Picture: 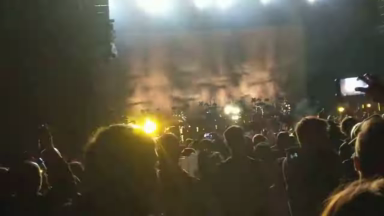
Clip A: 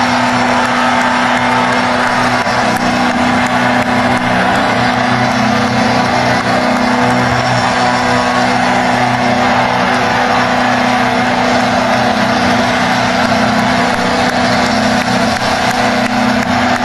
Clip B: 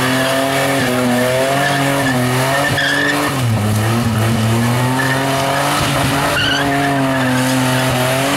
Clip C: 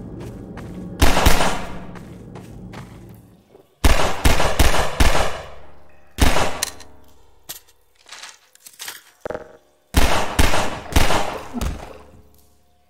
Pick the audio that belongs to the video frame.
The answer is A